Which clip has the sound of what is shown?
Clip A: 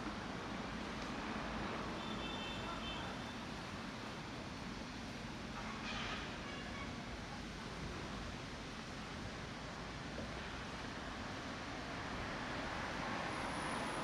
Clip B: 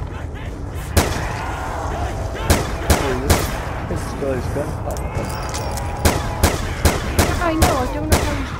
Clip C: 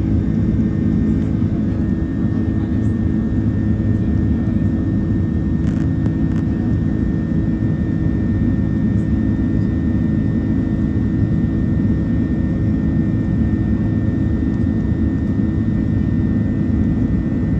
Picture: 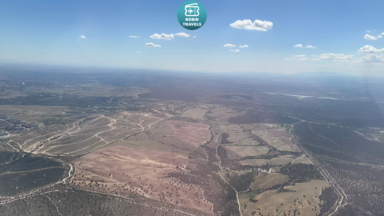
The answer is C